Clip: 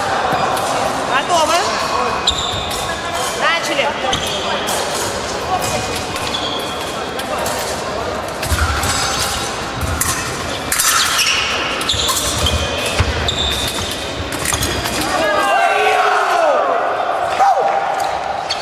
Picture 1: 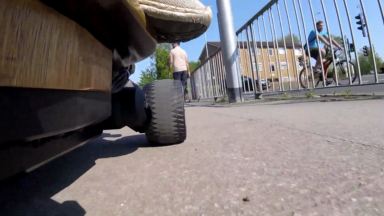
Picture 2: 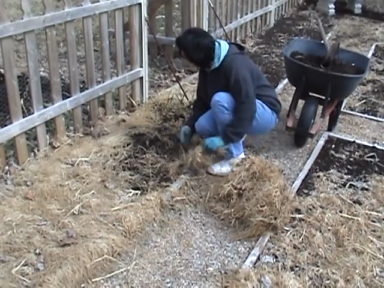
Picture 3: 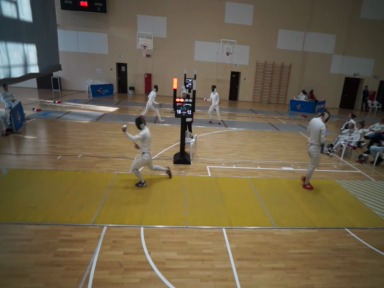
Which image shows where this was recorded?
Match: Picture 3